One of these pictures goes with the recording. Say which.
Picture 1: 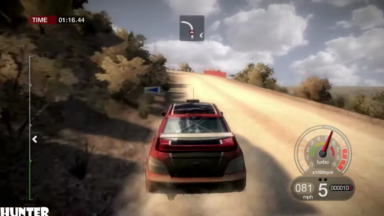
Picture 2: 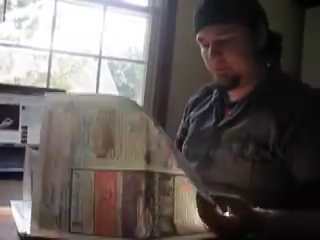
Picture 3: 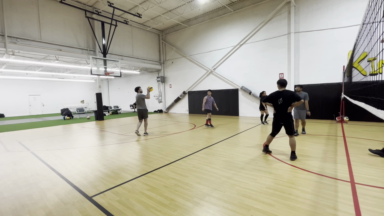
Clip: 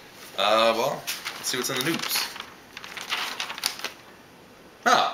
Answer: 2